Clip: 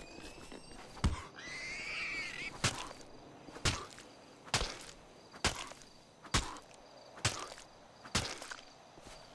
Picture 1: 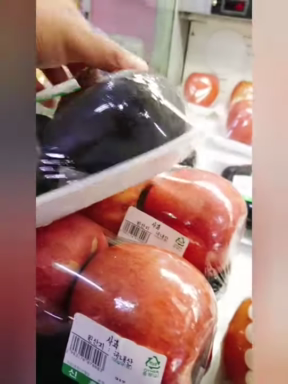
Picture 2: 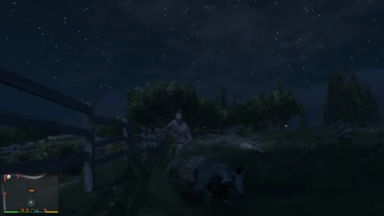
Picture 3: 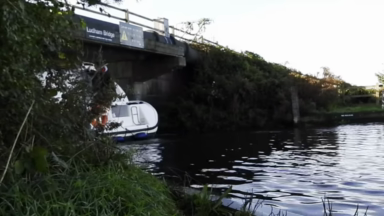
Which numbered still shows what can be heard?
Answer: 2